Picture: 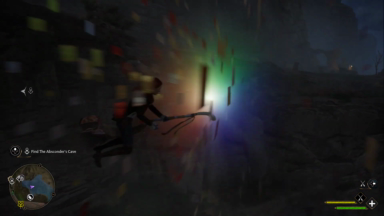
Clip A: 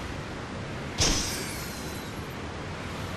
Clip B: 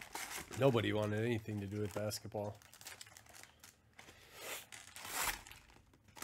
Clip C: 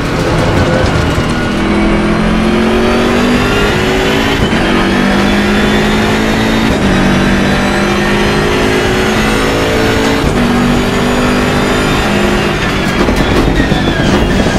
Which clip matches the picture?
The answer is A